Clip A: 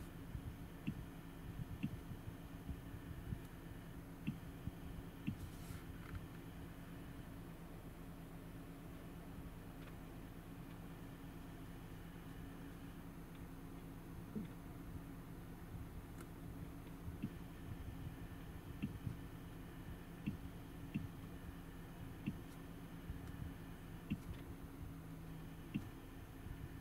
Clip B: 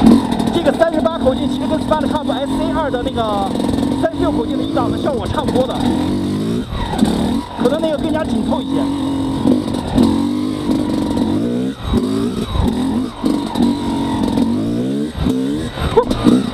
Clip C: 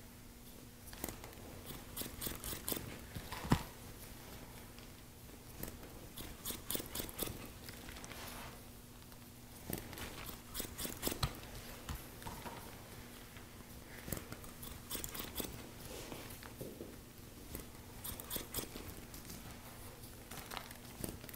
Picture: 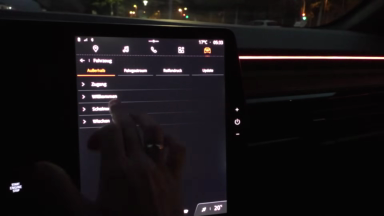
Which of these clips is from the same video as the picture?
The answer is A